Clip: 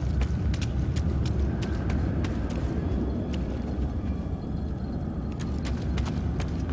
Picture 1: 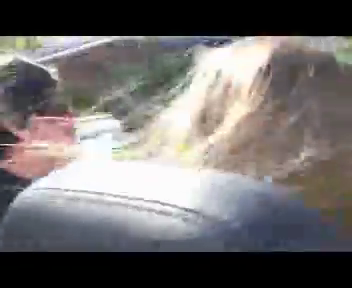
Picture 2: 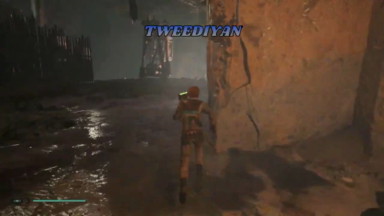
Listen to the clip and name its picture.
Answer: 2